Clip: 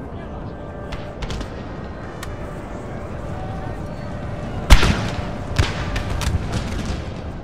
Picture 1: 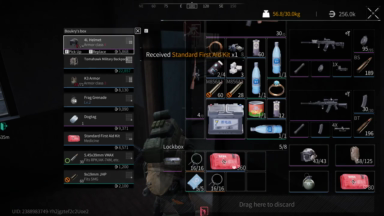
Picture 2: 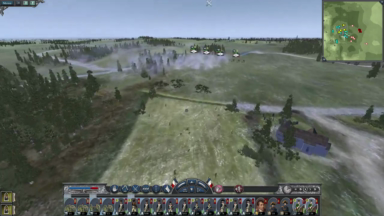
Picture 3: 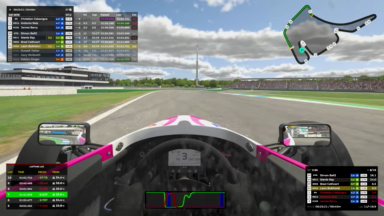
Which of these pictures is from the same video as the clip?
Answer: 2